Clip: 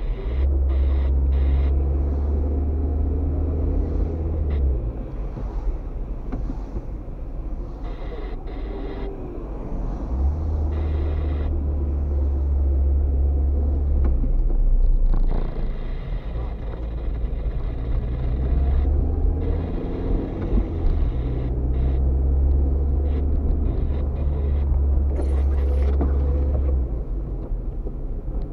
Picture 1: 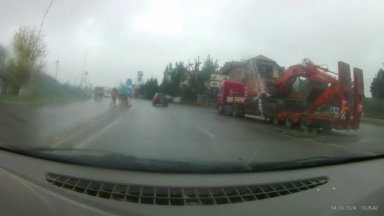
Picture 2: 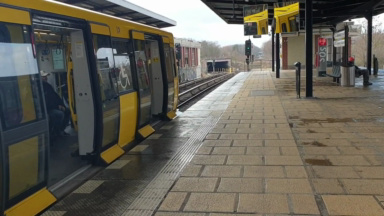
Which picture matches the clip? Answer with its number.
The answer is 1